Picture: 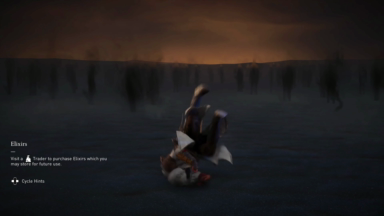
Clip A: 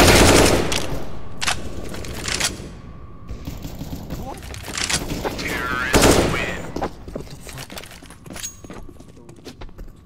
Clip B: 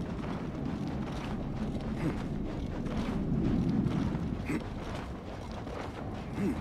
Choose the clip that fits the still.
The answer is B